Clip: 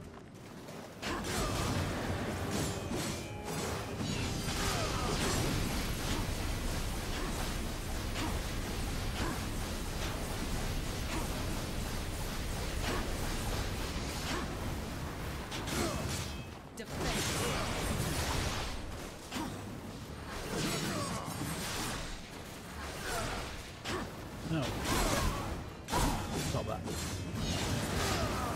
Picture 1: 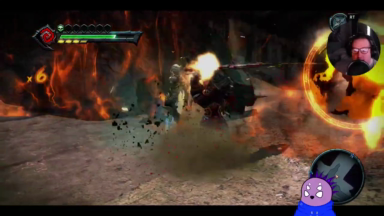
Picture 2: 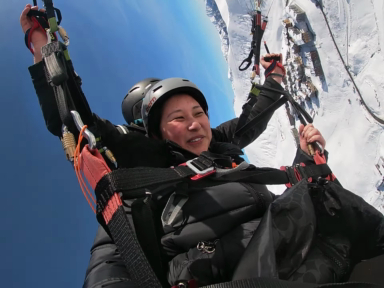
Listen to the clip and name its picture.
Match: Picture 1